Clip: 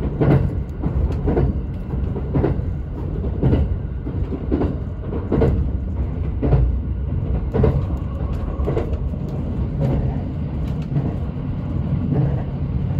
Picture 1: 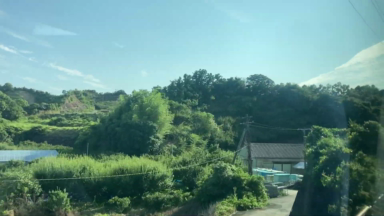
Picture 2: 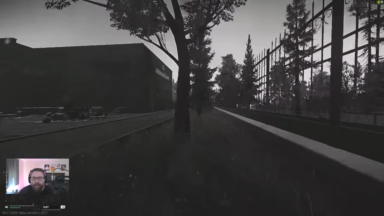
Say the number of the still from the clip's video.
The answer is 1